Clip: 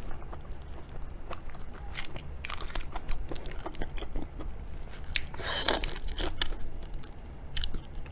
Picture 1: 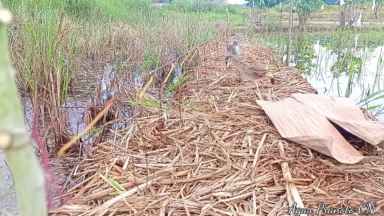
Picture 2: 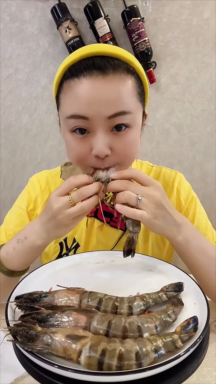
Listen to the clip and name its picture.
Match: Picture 2